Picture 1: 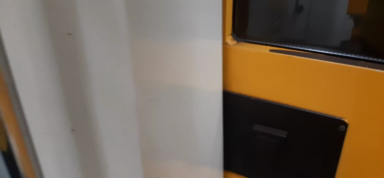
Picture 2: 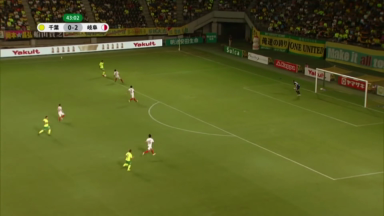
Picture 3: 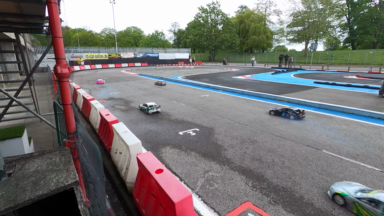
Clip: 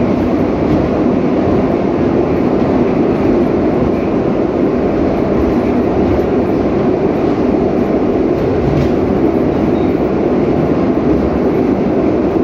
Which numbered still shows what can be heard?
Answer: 1